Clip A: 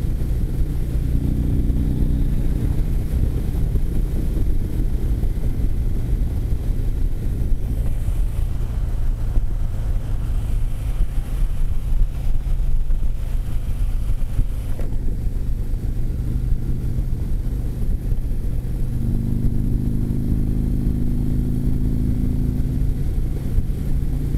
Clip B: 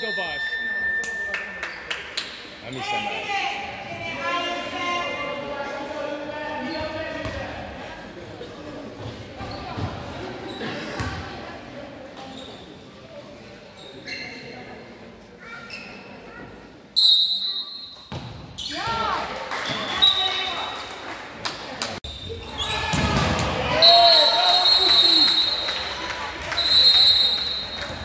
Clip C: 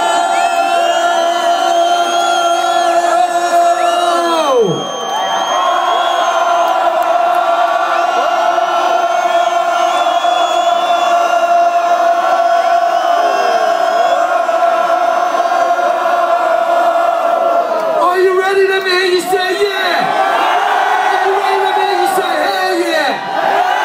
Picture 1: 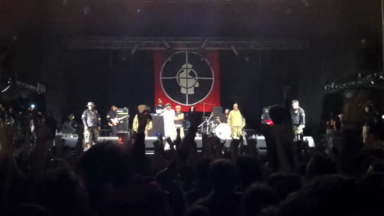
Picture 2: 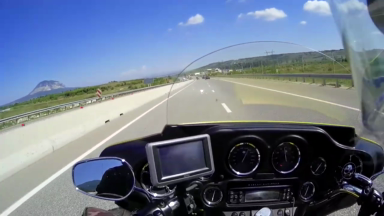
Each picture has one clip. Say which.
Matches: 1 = C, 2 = A